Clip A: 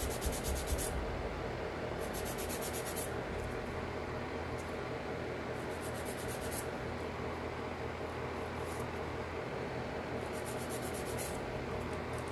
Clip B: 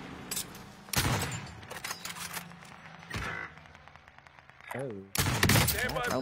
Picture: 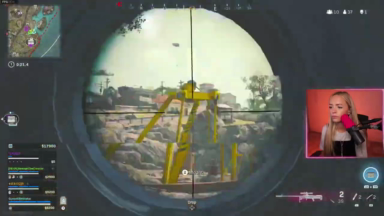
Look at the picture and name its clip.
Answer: B